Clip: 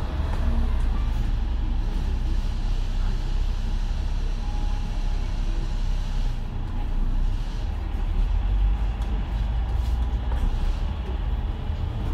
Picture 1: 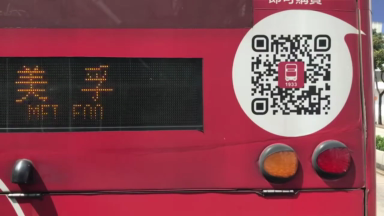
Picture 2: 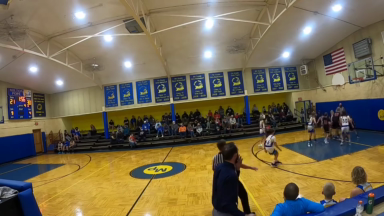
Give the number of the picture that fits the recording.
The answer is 1